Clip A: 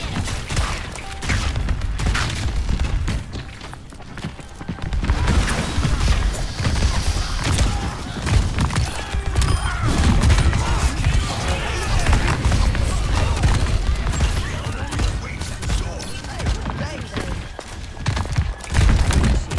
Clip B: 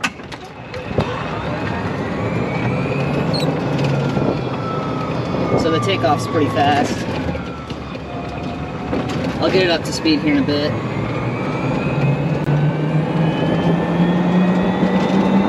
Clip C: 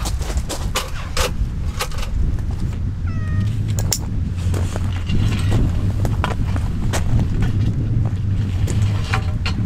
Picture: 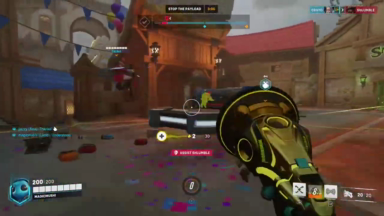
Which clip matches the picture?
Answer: A